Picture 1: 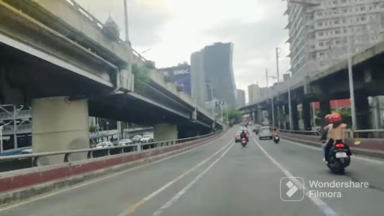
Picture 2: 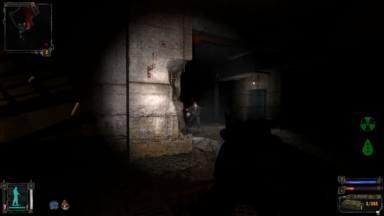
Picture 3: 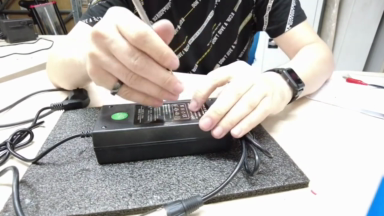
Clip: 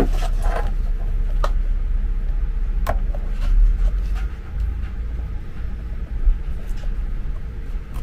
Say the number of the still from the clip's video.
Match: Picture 3